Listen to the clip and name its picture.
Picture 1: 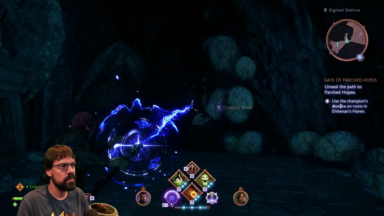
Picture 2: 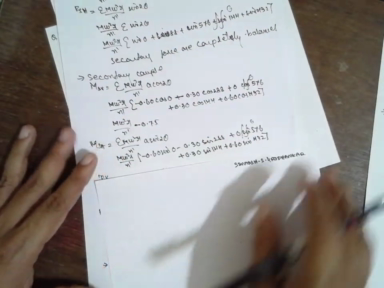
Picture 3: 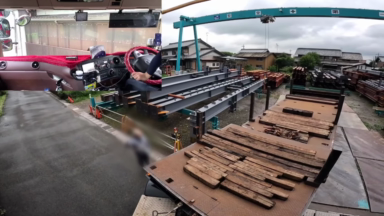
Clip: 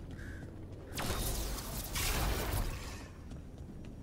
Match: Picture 1